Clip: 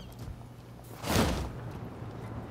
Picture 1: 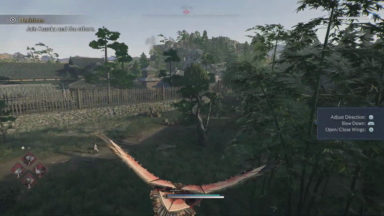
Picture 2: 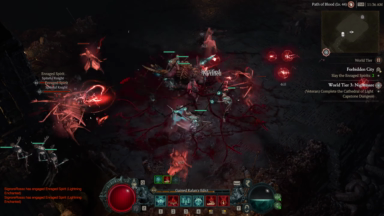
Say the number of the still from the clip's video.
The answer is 1